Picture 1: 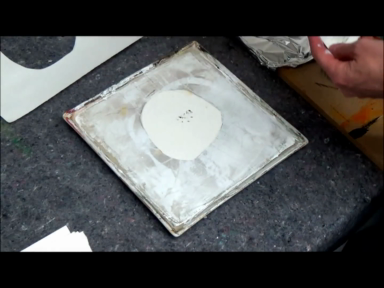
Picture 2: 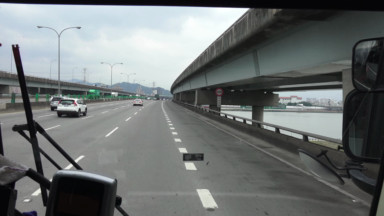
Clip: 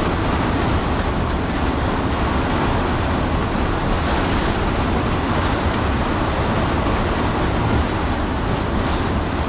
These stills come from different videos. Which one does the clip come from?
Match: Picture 2